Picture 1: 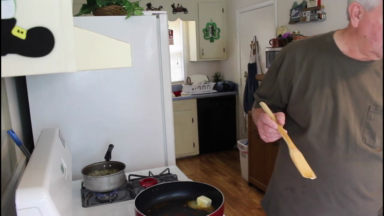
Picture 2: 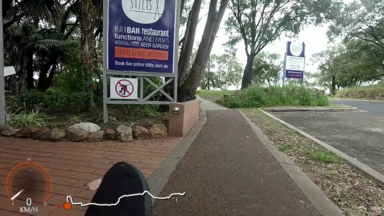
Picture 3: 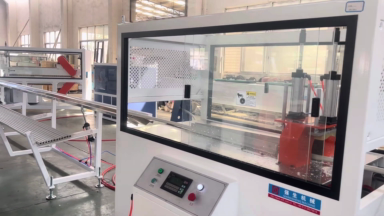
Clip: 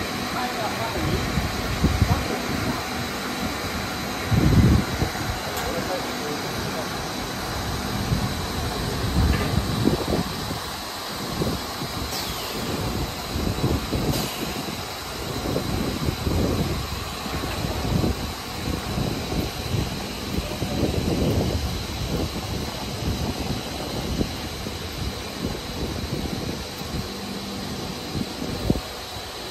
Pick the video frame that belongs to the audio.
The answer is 3